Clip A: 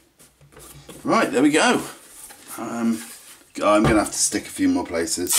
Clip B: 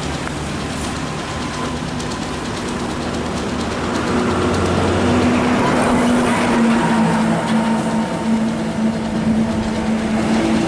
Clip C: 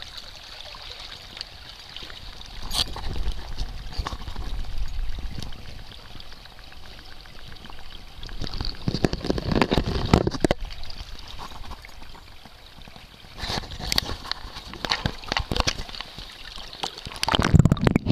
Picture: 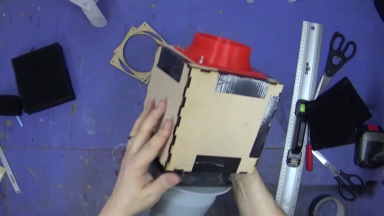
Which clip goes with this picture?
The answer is A